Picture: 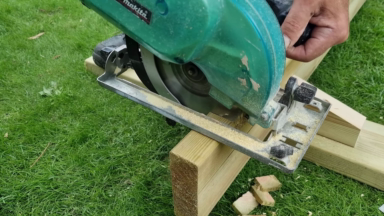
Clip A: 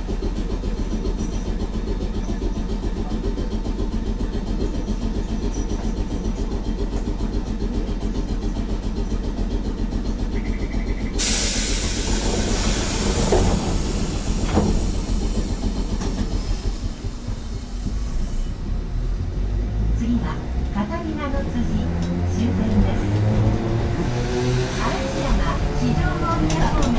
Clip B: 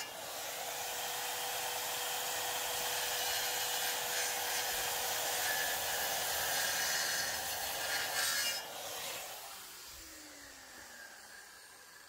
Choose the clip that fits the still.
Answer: B